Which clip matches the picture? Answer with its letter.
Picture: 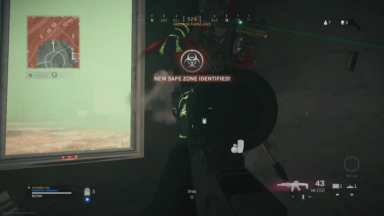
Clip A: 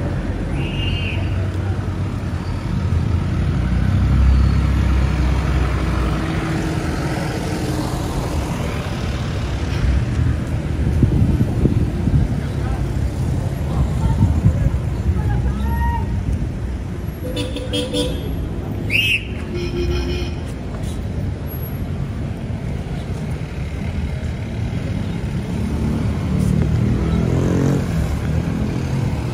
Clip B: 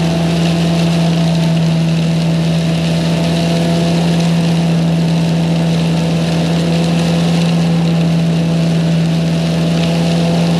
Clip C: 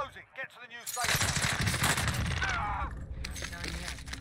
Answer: C